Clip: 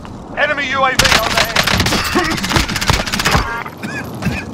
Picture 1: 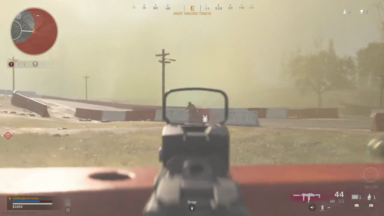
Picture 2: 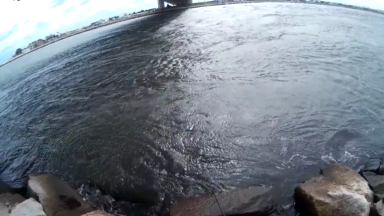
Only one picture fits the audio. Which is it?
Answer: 1